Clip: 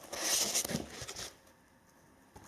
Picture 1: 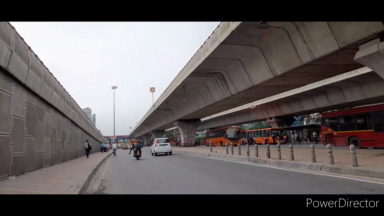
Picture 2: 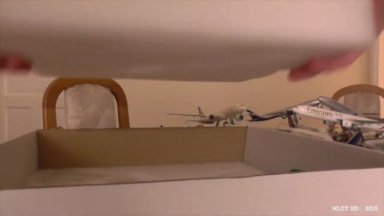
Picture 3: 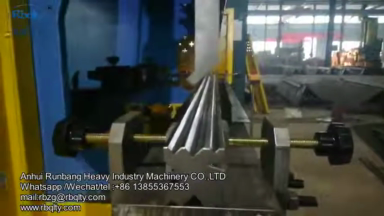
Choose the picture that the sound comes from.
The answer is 2